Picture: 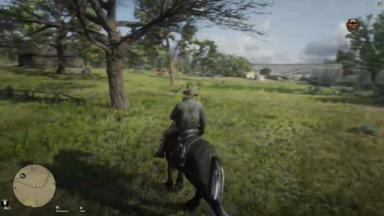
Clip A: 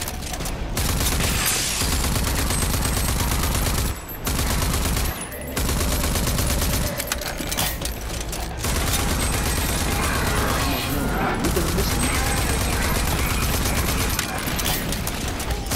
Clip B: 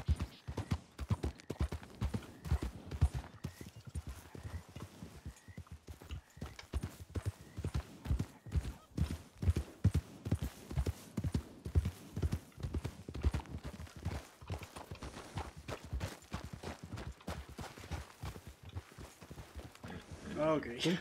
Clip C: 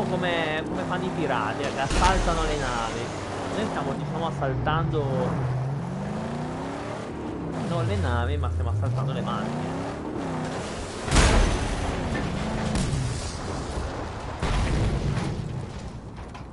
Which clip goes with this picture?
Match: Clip B